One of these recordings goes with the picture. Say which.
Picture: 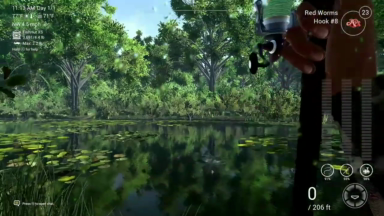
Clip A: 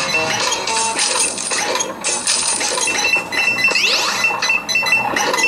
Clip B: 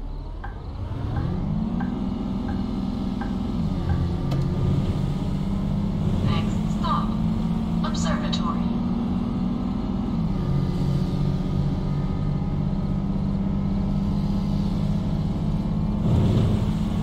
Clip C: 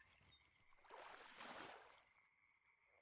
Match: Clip C